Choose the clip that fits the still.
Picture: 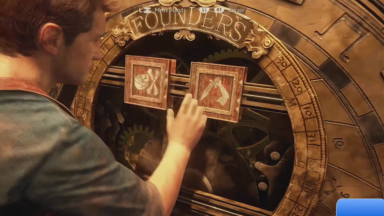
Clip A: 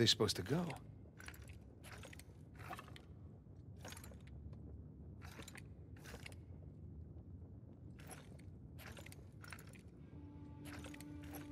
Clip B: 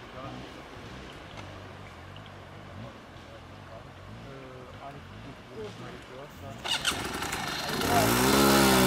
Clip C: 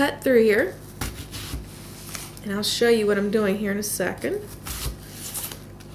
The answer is A